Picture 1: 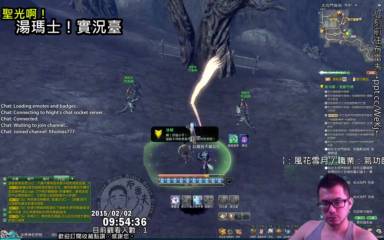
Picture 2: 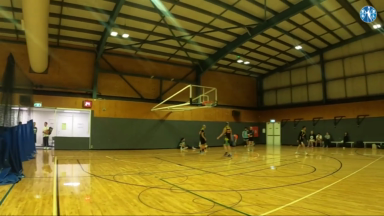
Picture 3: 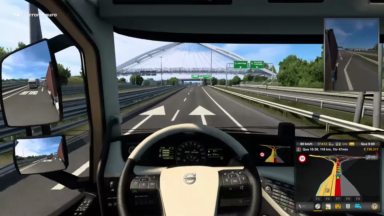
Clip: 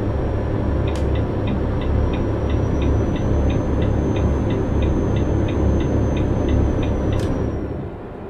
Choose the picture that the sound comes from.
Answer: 3